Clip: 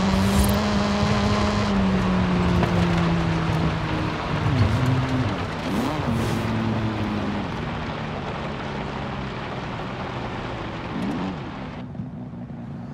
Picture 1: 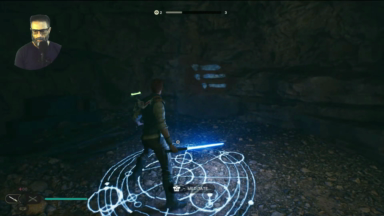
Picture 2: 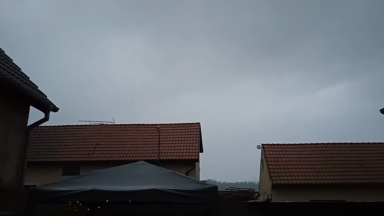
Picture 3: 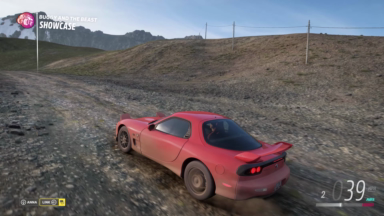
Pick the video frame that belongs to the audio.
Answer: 3